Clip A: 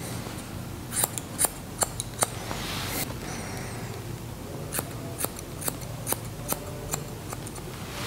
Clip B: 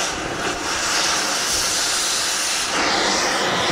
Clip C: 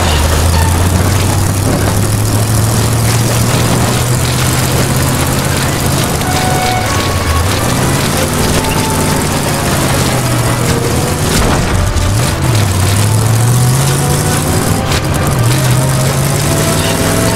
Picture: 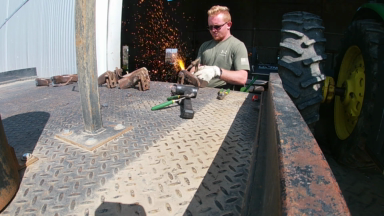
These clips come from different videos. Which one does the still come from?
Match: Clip B